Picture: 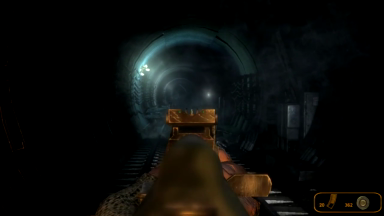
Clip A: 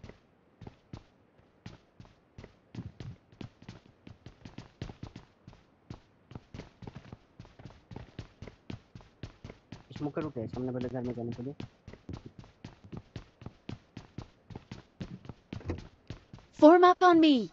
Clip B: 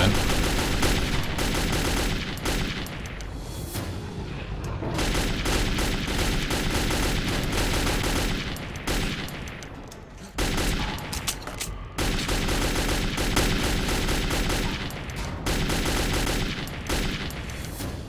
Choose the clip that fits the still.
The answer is B